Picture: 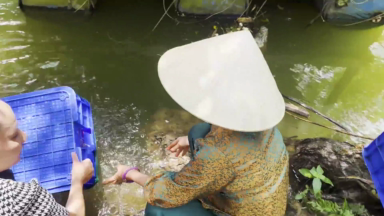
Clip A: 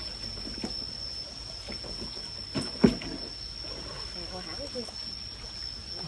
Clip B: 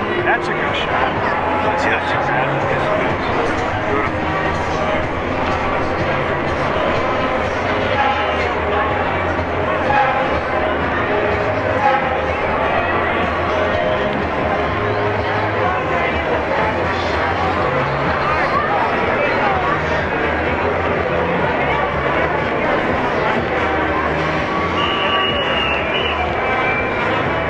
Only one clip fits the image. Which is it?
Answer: A